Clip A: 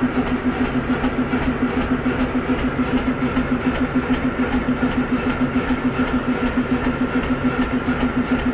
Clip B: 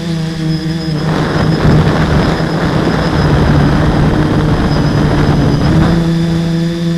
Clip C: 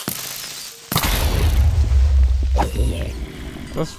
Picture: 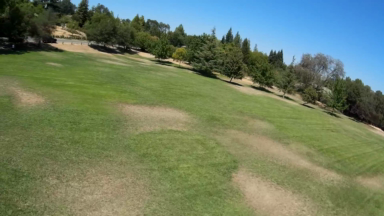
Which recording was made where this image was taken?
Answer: B